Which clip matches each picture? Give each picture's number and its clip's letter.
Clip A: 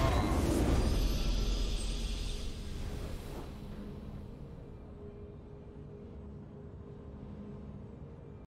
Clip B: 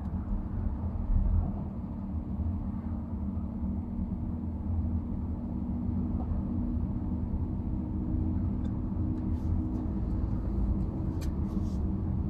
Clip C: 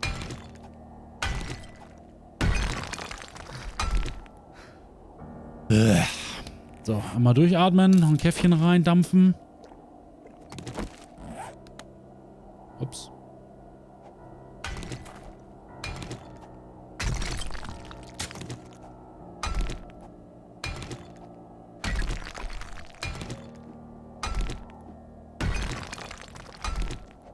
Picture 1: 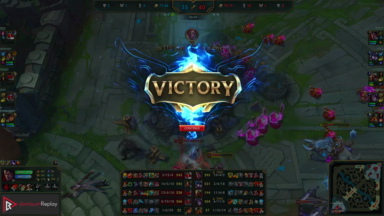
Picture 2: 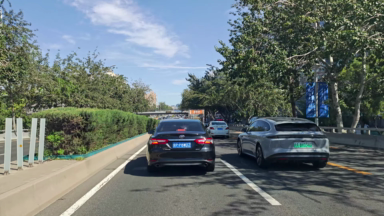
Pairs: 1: A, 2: B